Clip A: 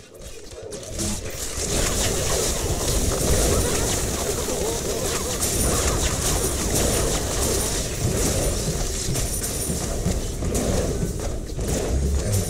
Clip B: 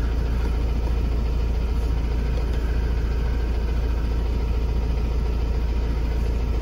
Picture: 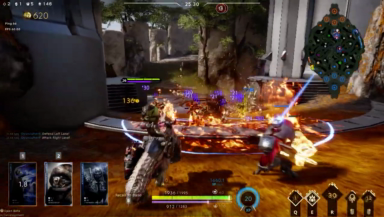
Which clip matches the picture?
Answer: A